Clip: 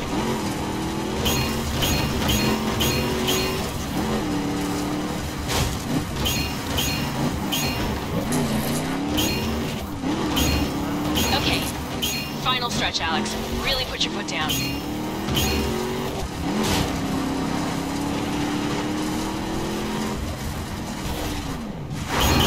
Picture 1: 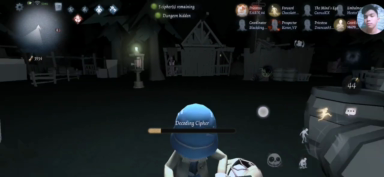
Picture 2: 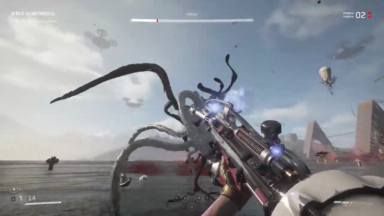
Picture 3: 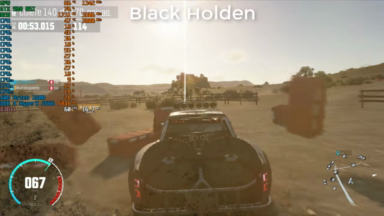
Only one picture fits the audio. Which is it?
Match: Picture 3